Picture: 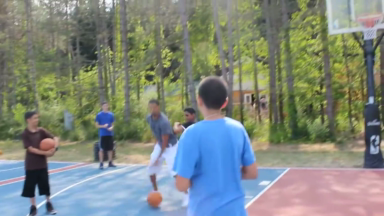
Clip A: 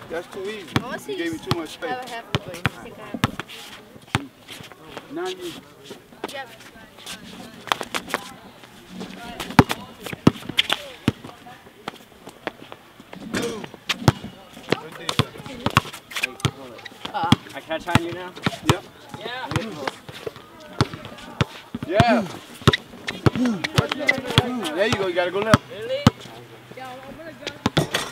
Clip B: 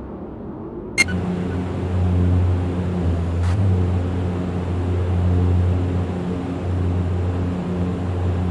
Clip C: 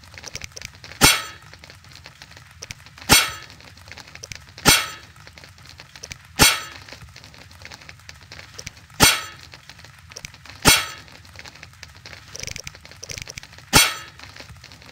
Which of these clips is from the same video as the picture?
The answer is A